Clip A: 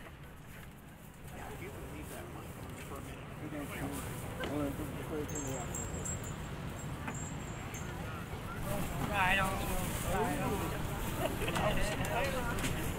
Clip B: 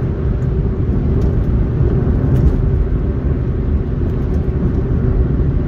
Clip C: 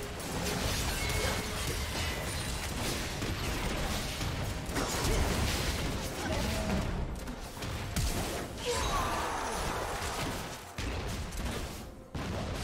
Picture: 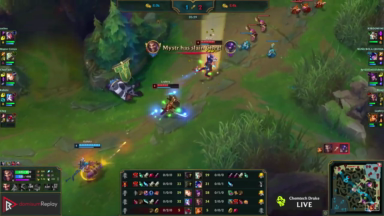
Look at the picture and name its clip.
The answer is C